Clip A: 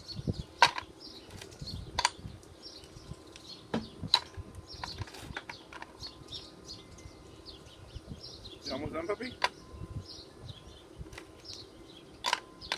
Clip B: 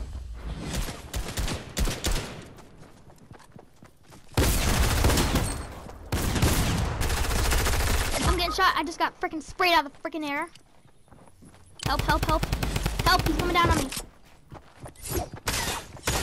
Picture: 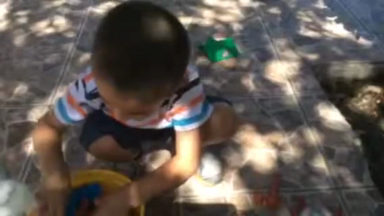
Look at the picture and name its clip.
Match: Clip A